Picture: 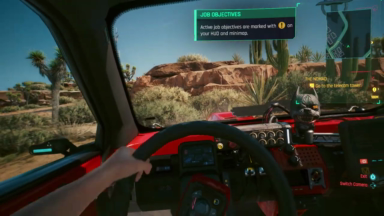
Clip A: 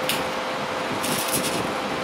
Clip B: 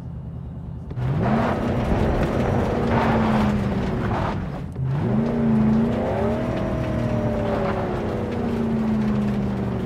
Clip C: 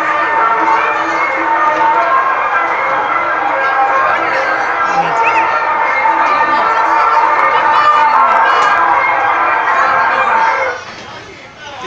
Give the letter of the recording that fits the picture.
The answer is B